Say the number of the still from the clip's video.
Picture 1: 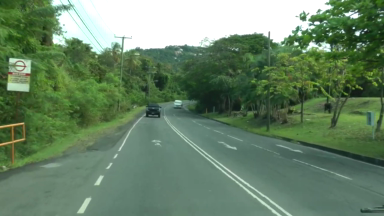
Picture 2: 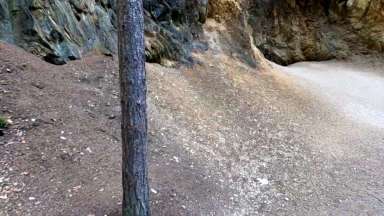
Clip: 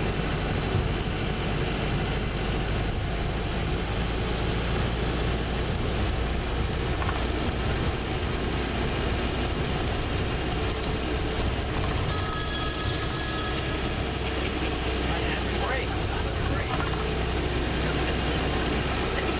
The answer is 1